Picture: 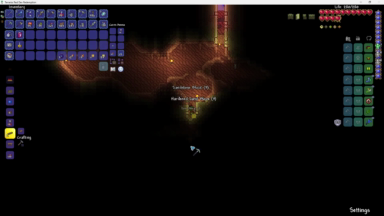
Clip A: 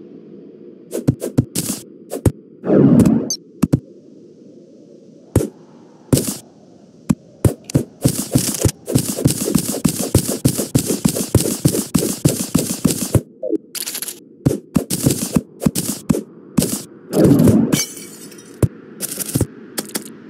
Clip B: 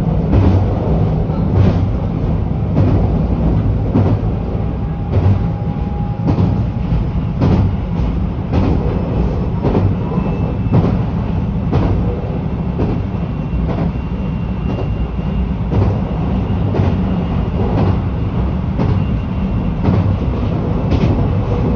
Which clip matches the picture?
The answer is A